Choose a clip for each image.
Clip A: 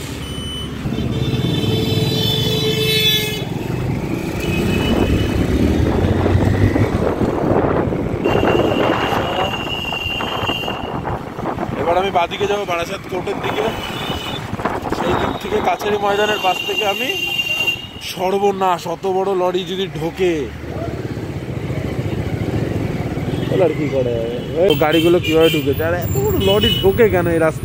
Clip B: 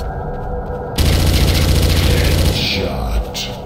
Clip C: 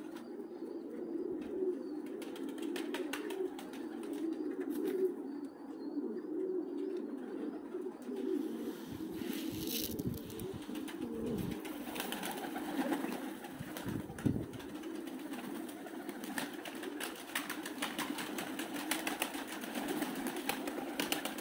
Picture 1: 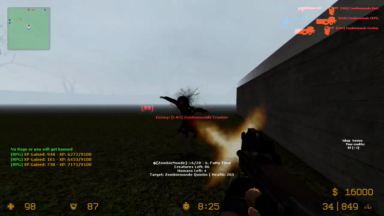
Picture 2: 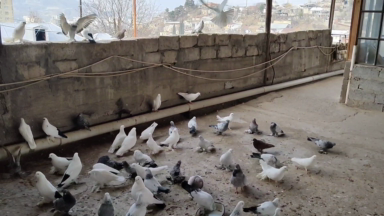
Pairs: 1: B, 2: C